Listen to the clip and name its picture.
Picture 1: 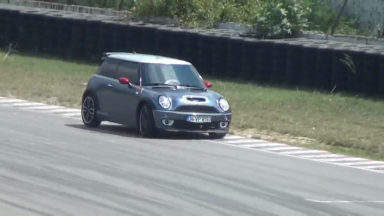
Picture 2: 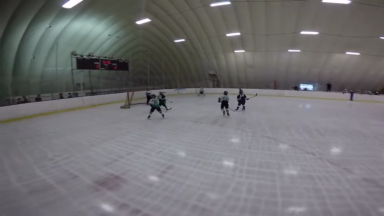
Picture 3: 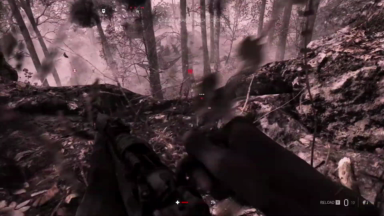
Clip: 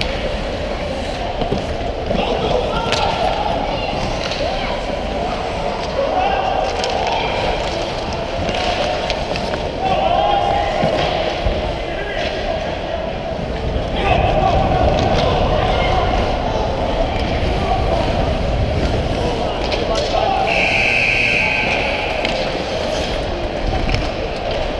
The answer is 2